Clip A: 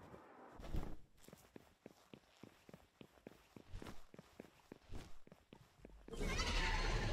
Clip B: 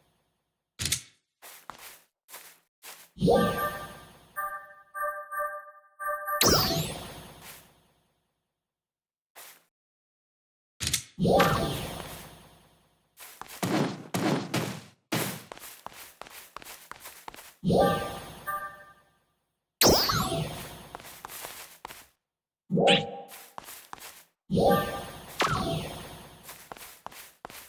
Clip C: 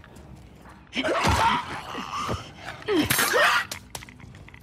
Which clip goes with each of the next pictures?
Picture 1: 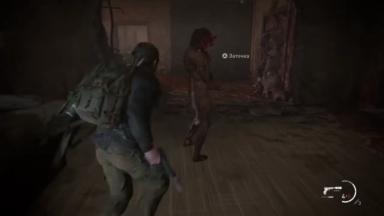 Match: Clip C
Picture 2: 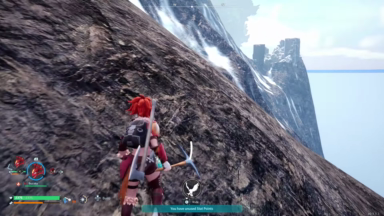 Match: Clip A